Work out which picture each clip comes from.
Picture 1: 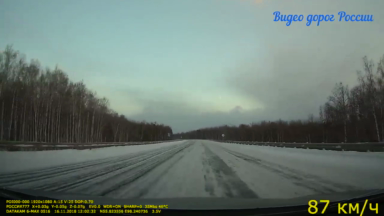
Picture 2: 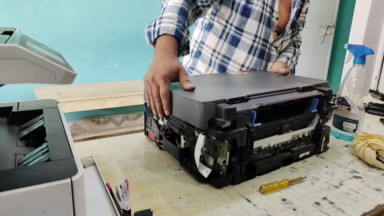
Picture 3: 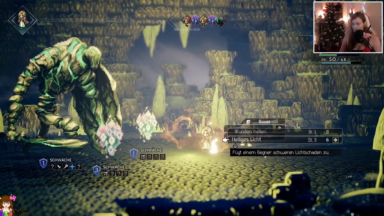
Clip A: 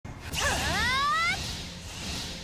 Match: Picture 3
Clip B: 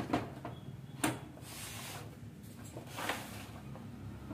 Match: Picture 2